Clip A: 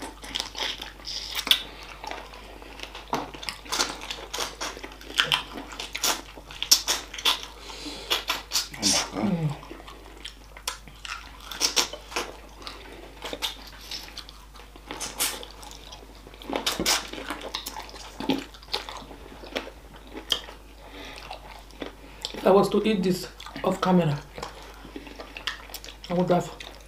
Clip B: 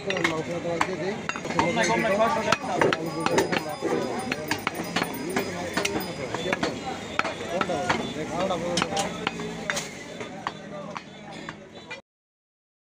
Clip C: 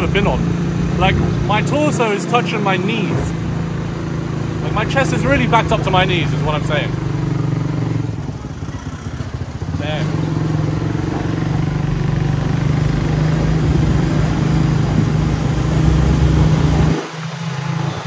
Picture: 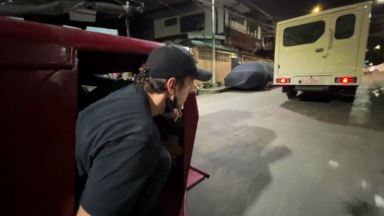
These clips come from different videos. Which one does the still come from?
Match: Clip C